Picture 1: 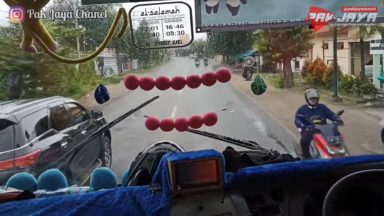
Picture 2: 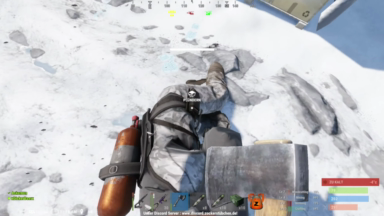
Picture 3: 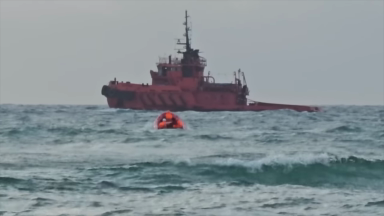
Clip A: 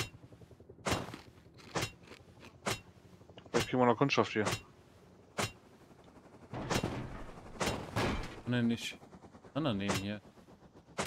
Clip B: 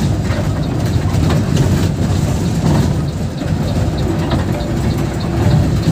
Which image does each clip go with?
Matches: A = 2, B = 1